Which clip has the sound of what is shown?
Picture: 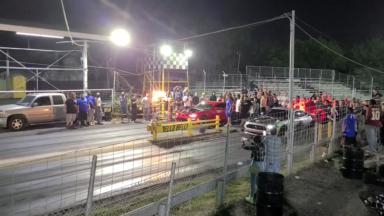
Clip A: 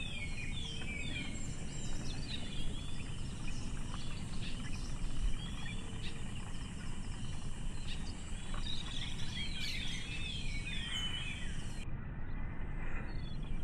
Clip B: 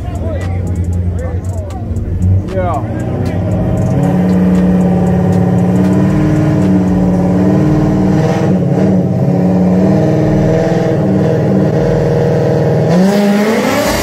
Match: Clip B